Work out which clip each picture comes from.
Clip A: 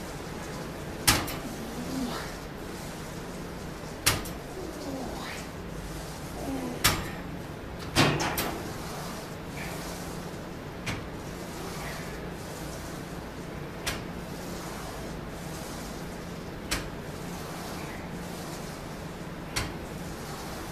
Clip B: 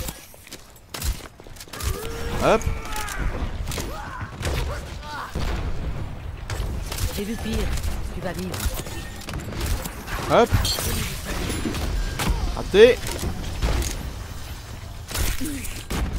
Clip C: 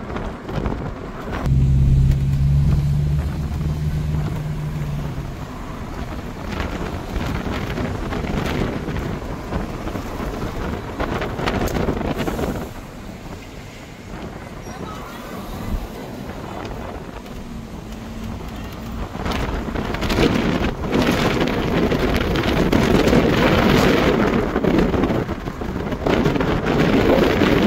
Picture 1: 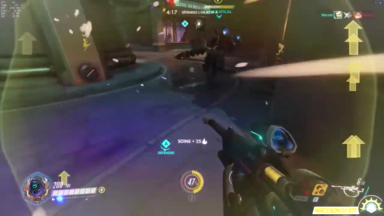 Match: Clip B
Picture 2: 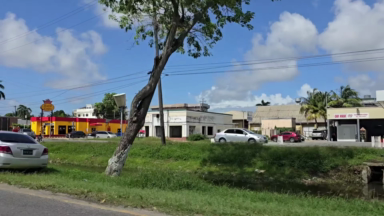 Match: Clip C